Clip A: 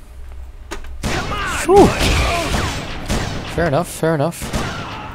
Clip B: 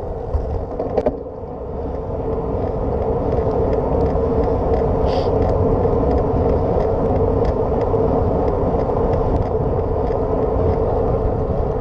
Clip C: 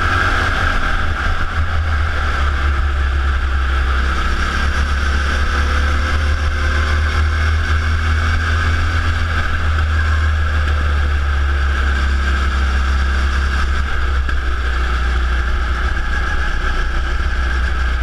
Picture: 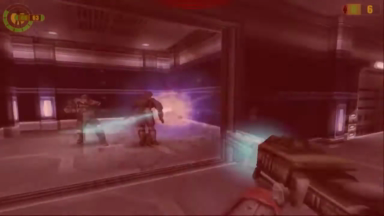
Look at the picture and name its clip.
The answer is A